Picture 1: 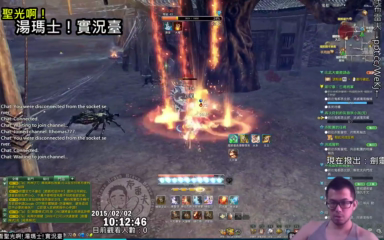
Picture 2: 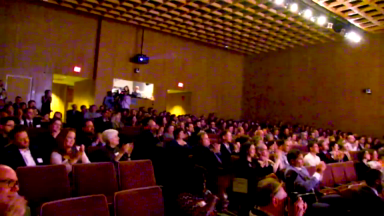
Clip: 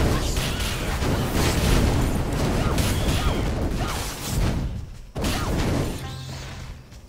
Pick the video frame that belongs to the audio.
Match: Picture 1